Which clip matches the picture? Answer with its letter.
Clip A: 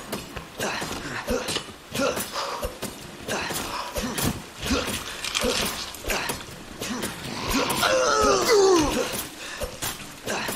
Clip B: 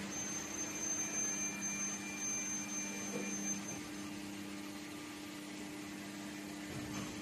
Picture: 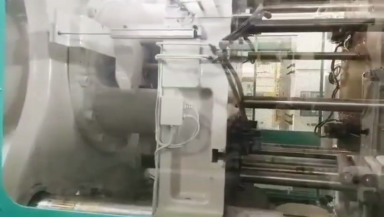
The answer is B